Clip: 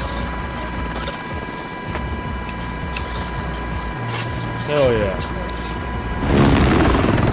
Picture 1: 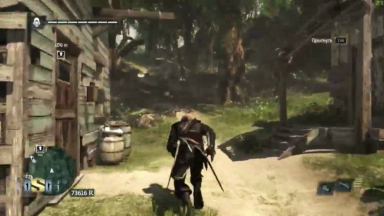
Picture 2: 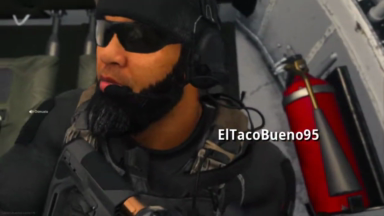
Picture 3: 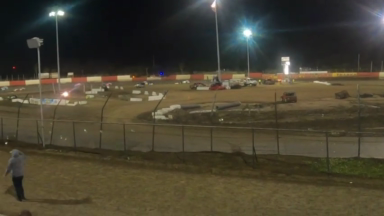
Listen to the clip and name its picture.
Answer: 2